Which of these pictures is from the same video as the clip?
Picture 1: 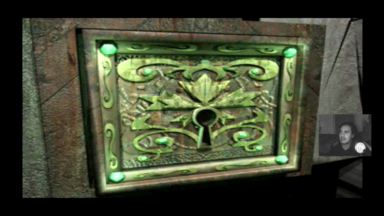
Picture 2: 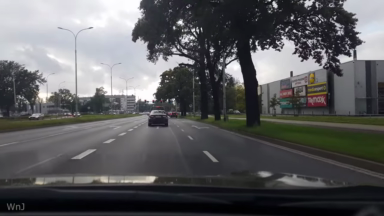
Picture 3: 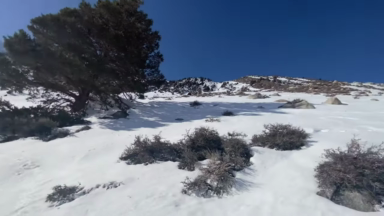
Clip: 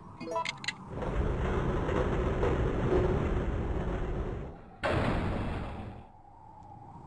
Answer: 1